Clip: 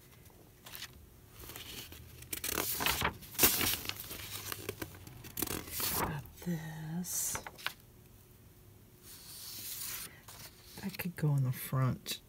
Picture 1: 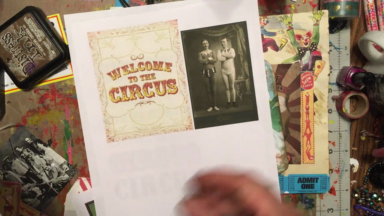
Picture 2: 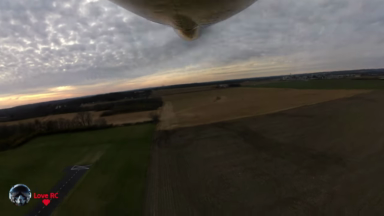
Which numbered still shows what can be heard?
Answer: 1